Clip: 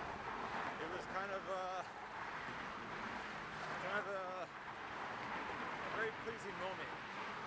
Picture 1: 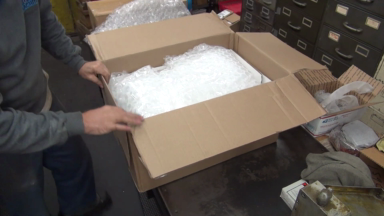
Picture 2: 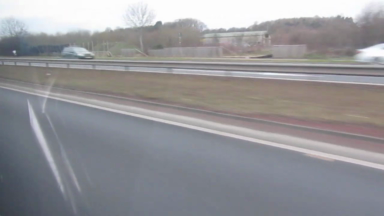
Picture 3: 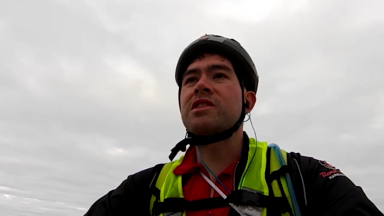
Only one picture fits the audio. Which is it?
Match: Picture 3